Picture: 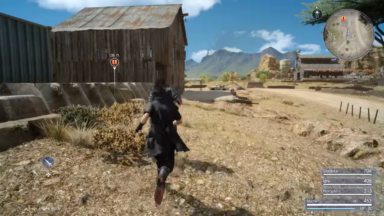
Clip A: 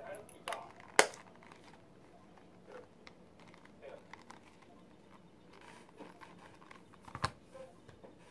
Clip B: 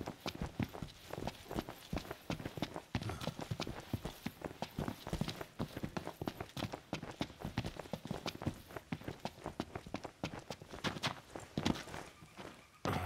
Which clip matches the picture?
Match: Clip B